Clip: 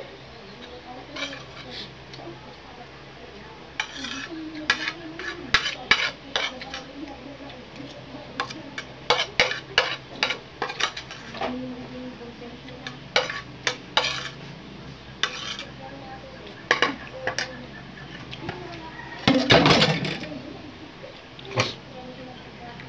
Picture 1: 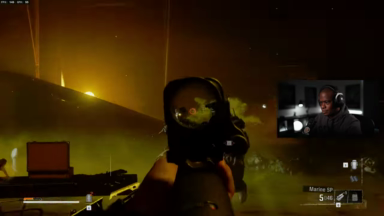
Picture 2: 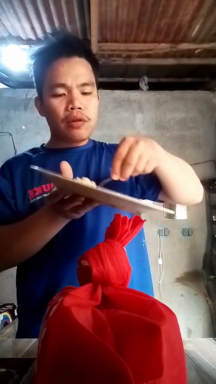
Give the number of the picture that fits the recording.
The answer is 2